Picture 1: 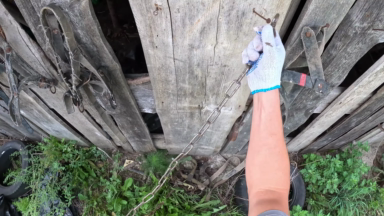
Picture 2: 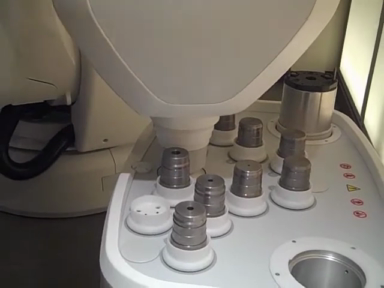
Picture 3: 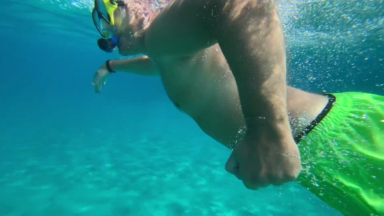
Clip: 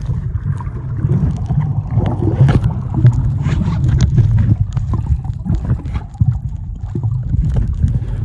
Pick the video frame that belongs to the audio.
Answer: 3